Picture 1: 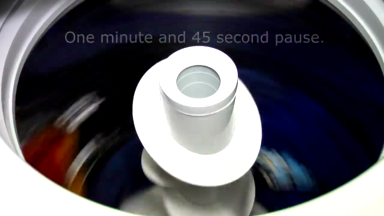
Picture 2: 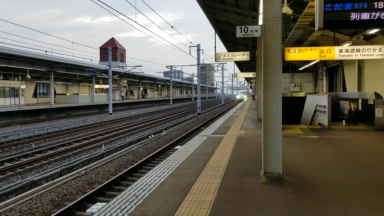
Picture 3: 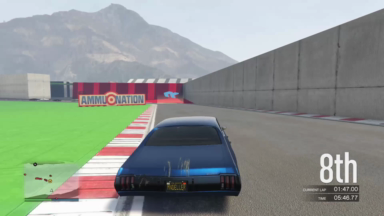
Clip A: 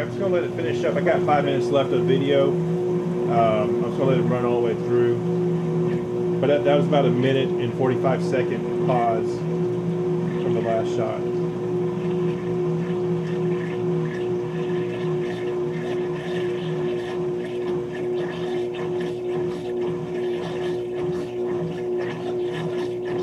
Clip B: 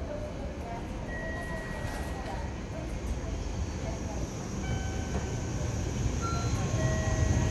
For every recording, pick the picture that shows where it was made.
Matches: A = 1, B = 2